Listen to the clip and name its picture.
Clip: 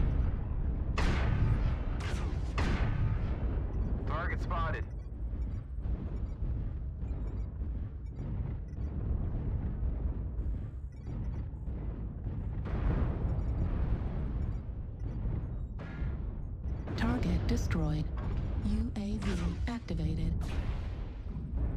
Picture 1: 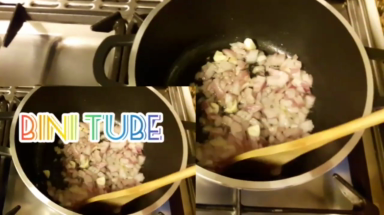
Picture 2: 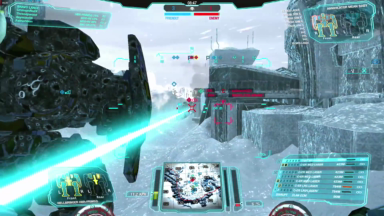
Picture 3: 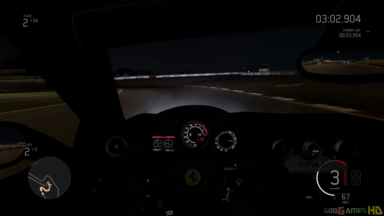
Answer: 2